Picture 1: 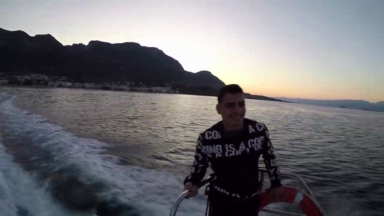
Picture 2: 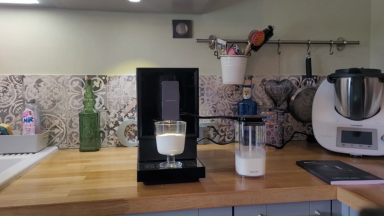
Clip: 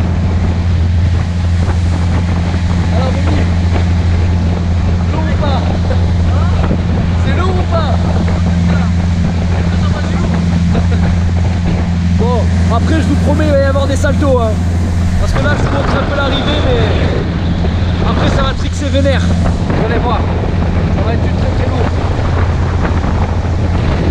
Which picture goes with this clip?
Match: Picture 1